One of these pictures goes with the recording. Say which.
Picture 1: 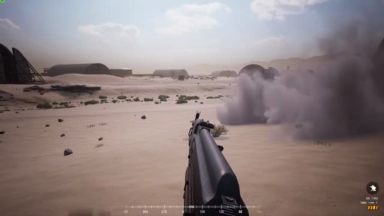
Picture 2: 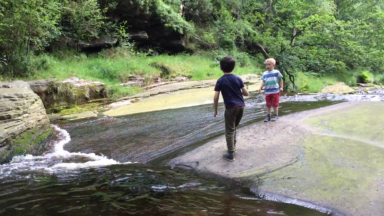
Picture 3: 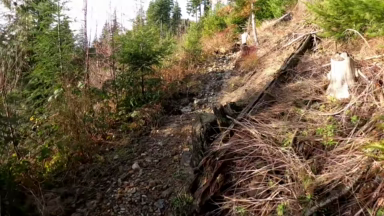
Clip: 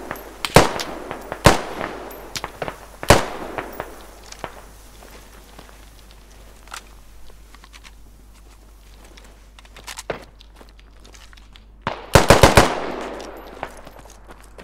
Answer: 1